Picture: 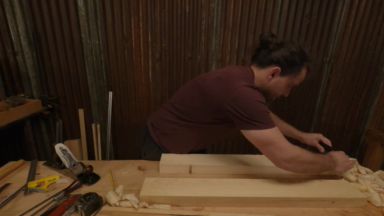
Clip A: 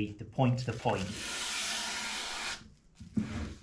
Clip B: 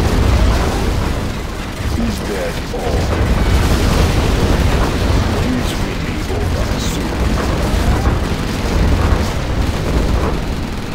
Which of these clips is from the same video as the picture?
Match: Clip A